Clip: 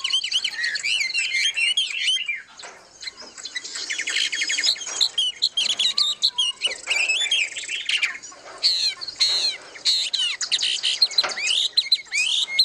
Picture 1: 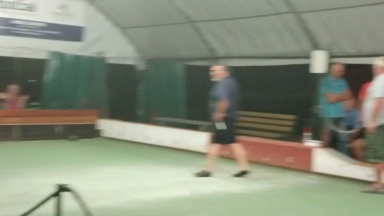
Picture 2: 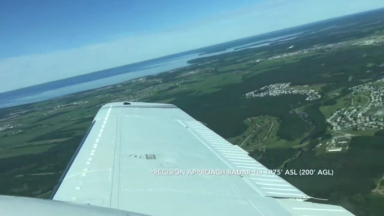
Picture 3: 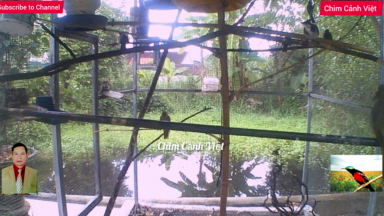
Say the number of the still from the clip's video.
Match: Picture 3